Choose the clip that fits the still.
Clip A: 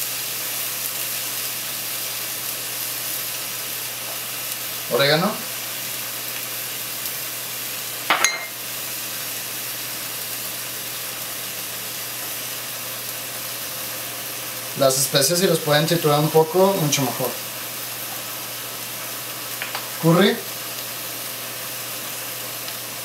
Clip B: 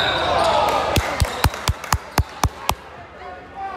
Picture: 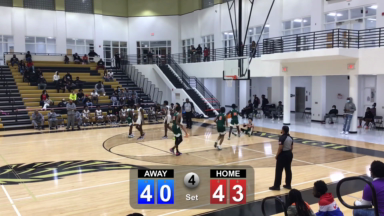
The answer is B